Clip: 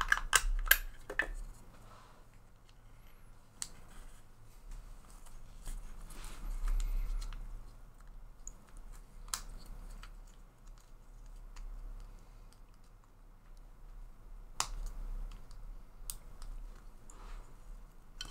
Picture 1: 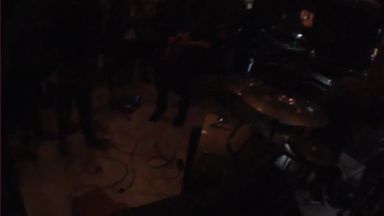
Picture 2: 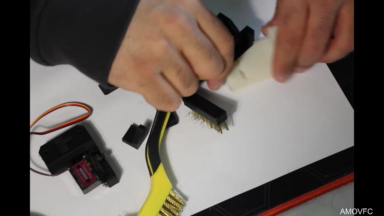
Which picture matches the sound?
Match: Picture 2